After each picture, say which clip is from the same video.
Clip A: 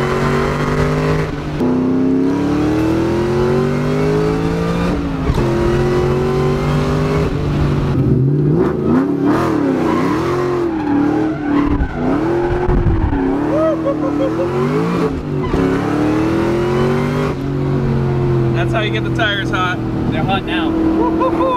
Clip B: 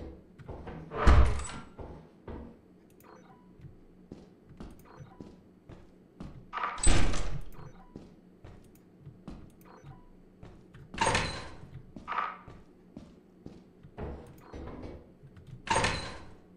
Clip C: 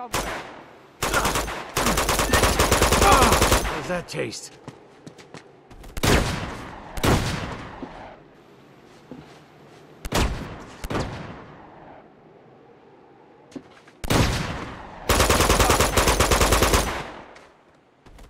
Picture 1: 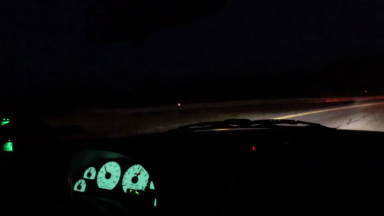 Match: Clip A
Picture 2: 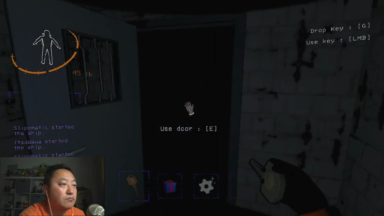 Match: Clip B